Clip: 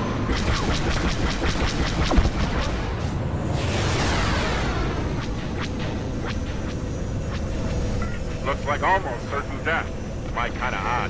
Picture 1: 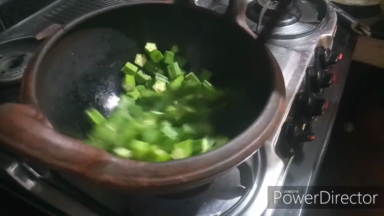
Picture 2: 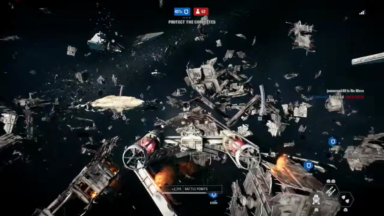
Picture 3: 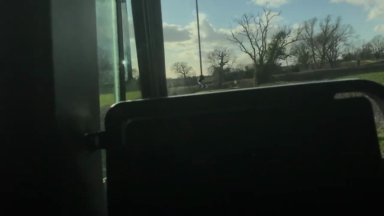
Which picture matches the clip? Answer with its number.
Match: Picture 2